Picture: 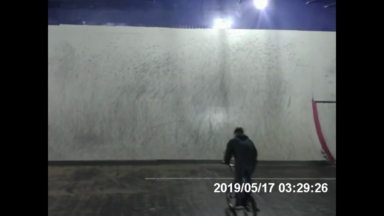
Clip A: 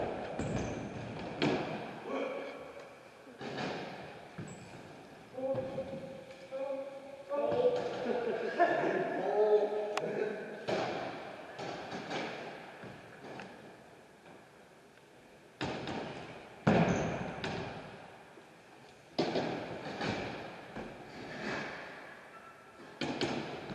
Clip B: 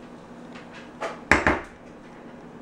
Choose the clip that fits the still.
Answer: A